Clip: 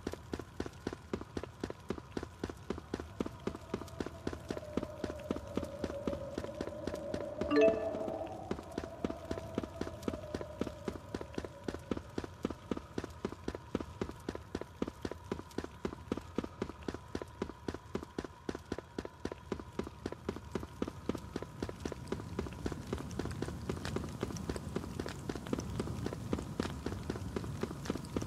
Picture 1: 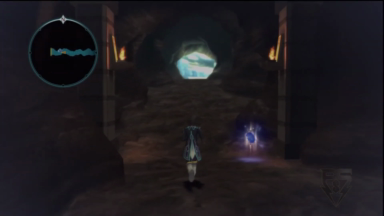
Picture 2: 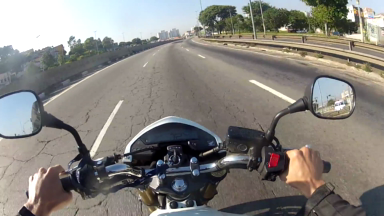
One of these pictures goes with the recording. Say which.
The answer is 1